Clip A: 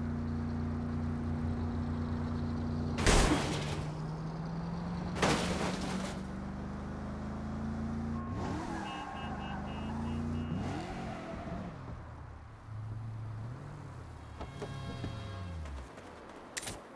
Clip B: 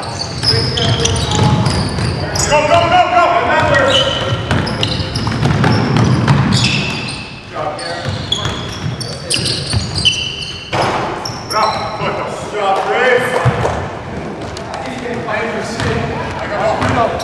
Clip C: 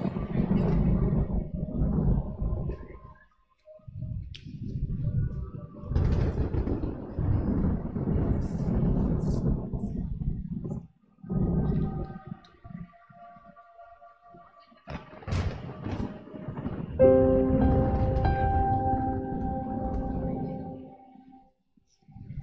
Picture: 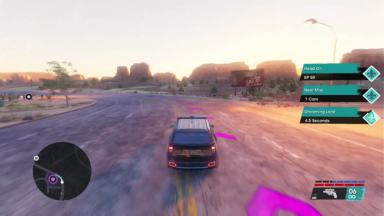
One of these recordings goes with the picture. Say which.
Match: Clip A